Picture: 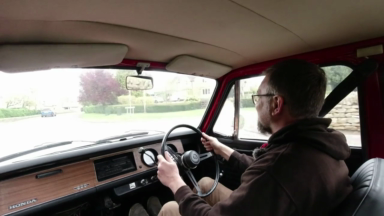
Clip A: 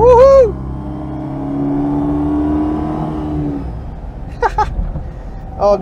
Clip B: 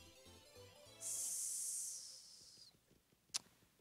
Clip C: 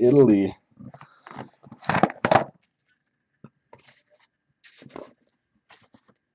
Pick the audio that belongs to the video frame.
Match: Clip A